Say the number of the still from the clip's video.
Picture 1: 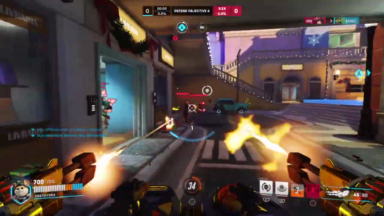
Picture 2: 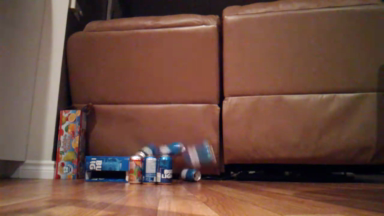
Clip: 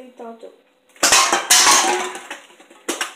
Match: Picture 2